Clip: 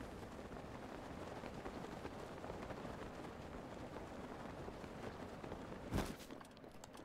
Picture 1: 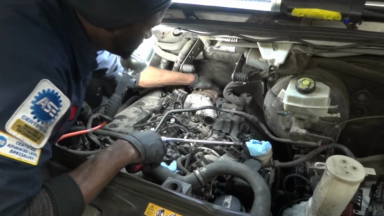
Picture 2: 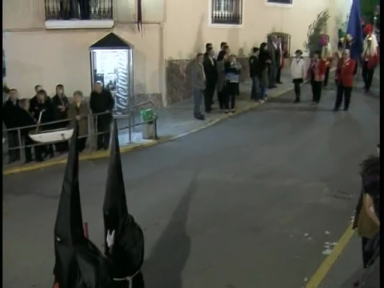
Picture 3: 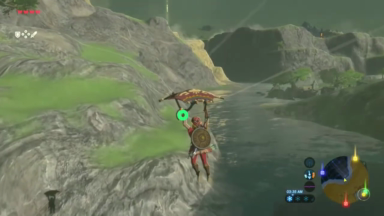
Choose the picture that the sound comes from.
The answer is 3